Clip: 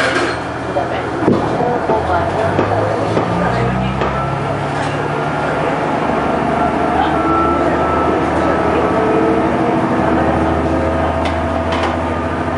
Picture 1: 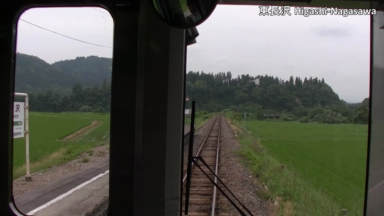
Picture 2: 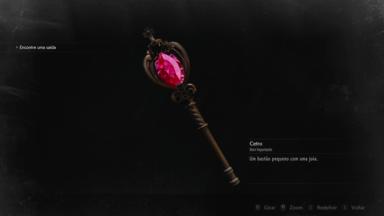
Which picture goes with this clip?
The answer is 1